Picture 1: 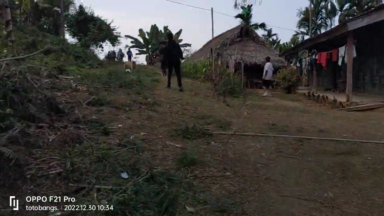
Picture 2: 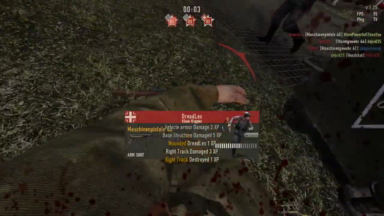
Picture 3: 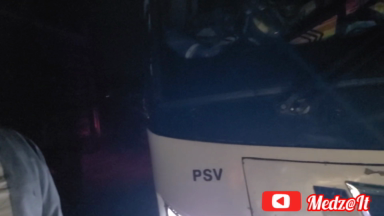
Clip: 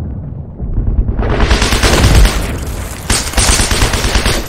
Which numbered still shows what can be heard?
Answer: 2